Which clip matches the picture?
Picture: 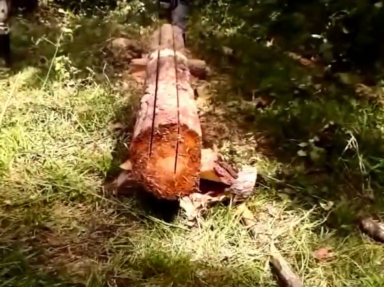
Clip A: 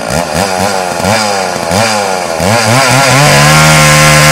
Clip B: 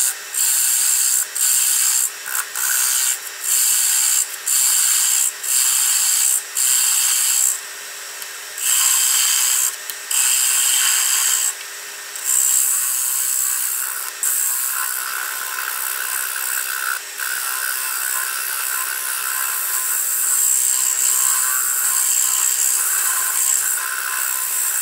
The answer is A